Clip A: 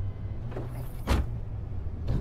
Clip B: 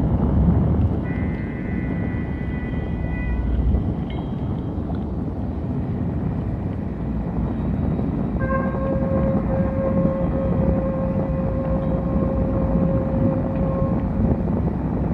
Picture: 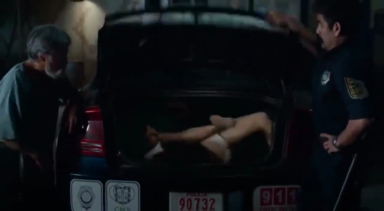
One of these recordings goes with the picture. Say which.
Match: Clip A